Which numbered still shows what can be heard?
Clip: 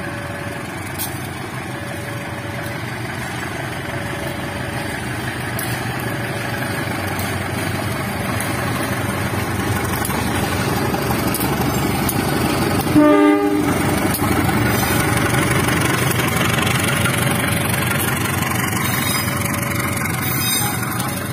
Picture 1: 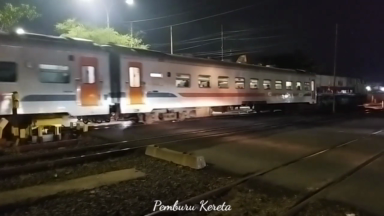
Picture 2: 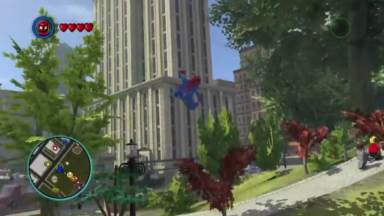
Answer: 1